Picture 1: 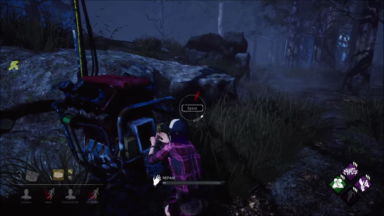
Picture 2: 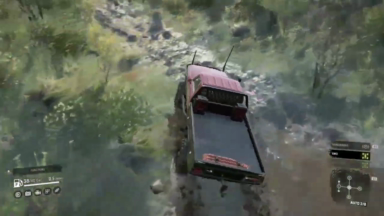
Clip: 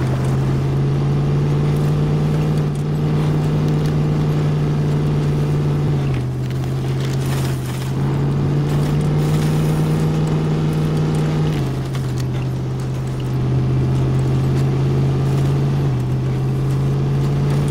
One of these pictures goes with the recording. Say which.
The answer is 2